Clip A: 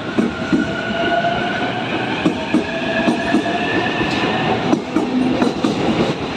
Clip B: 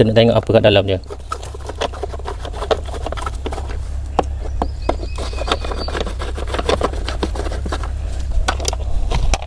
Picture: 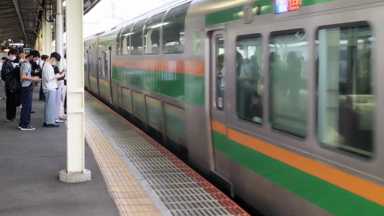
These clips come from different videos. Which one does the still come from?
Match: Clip A